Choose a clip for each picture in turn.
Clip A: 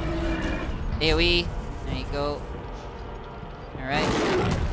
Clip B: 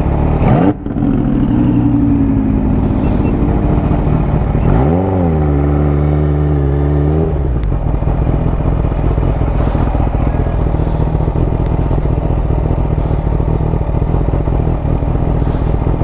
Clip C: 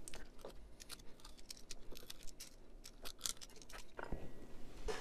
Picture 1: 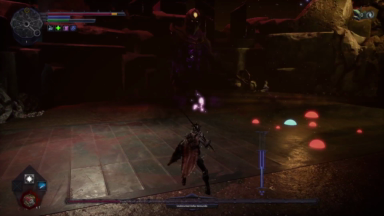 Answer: A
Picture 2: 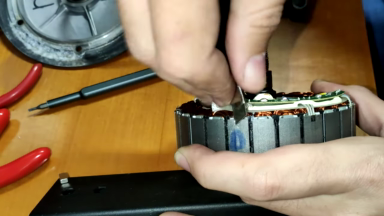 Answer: C